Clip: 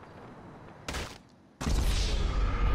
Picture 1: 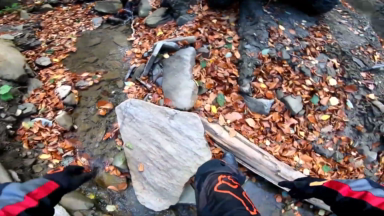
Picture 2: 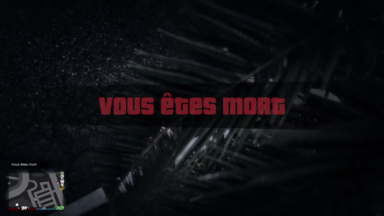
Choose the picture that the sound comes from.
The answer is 2